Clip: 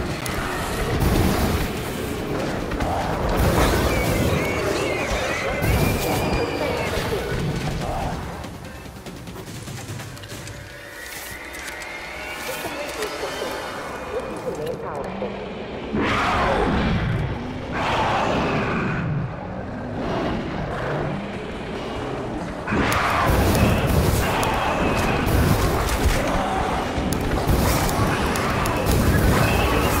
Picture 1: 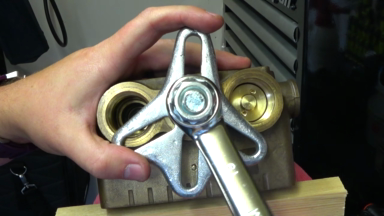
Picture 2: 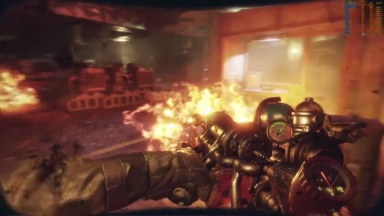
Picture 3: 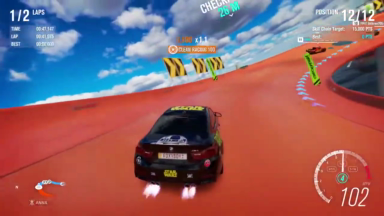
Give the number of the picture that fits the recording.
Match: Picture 2